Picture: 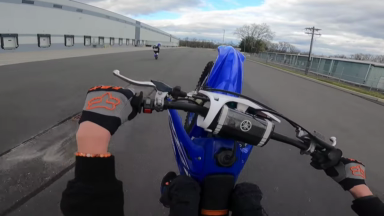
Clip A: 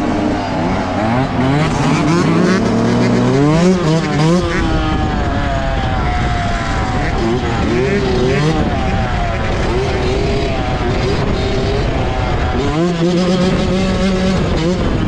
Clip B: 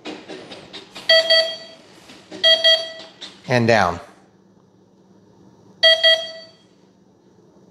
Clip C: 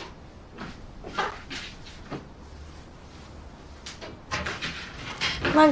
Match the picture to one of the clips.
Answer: A